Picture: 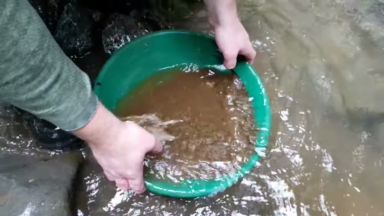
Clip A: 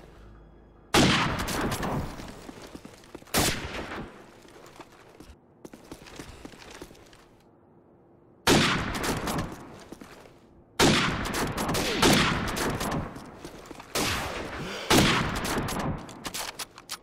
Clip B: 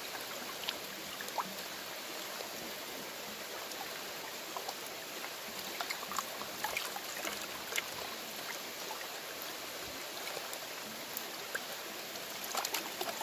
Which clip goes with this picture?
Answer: B